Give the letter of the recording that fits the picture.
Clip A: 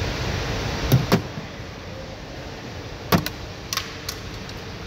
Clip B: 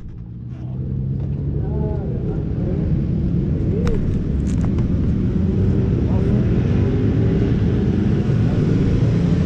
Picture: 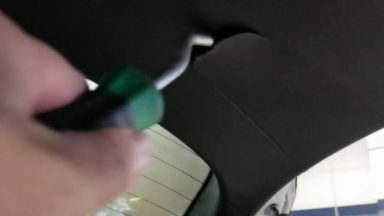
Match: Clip A